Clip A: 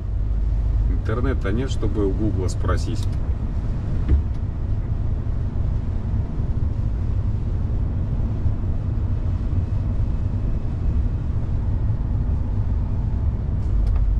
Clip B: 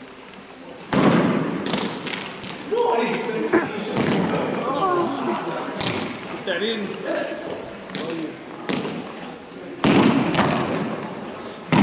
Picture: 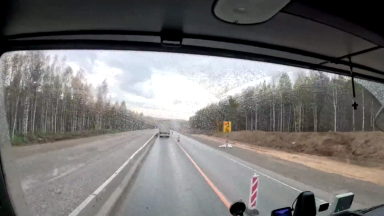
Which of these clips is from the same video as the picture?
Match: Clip A